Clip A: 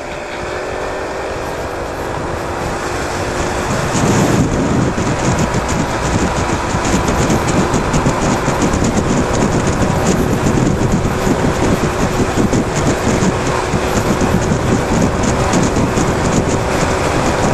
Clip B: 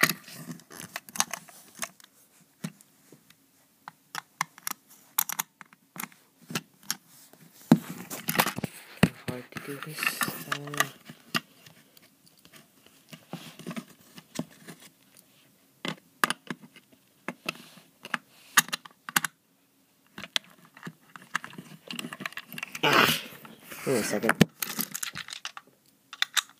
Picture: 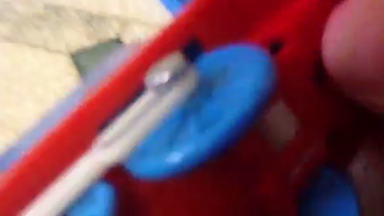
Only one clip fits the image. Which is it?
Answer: B